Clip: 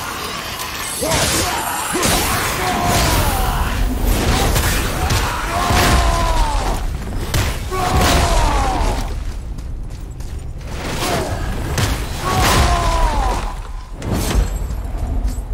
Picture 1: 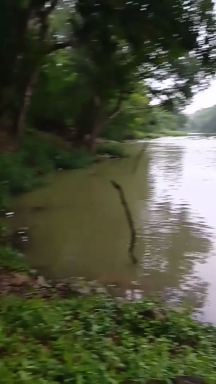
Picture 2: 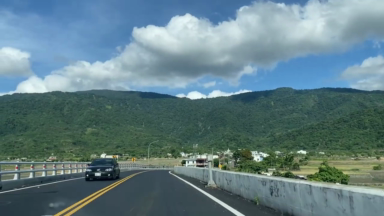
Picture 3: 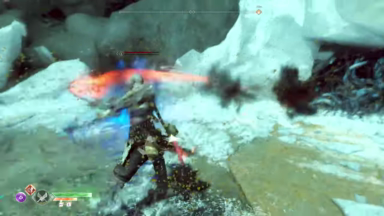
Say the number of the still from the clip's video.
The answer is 3